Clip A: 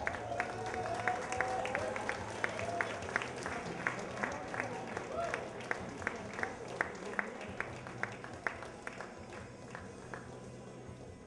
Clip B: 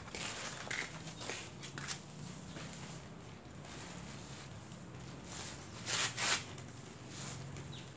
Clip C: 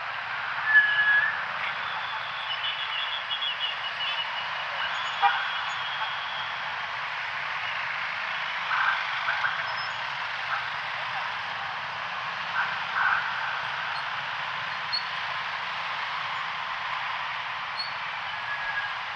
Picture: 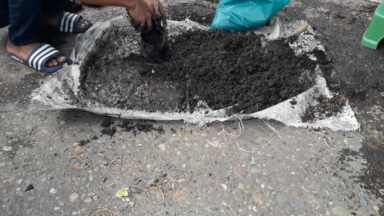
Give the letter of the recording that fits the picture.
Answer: B